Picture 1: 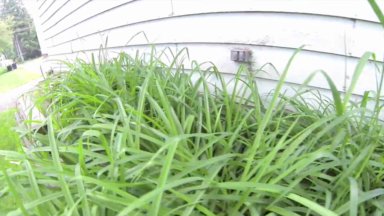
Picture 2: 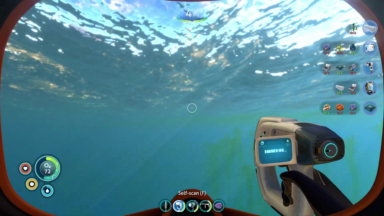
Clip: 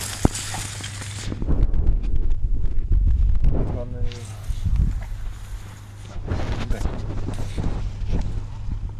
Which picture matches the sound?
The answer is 1